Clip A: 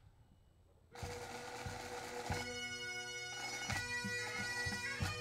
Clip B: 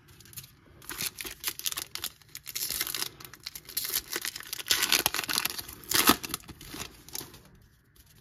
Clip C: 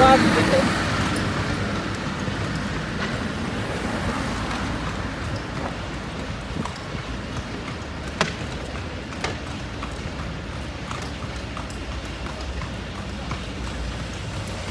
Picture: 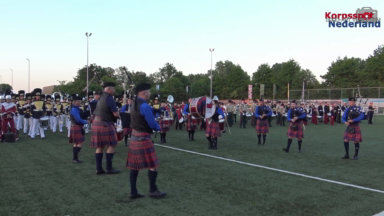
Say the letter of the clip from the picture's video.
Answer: A